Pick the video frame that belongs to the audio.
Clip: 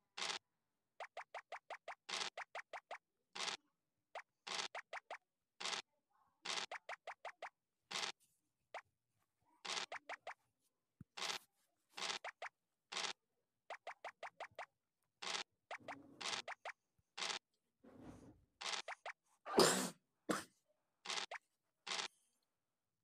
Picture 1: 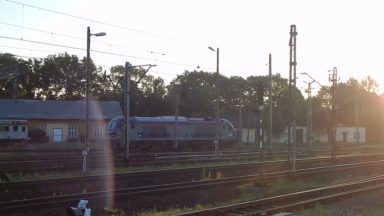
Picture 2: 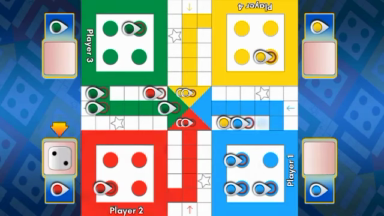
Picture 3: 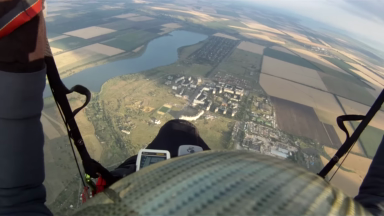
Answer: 2